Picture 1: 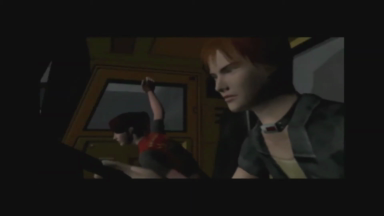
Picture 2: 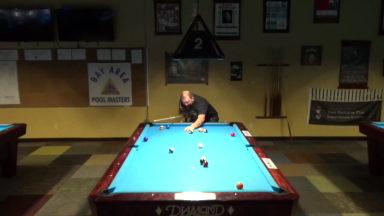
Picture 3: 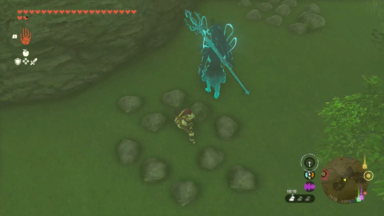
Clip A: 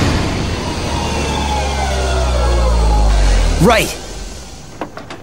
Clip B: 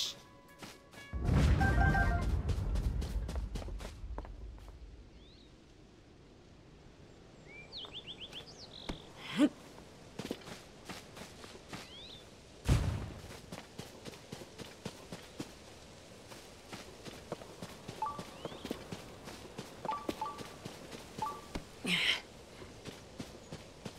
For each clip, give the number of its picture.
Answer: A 1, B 3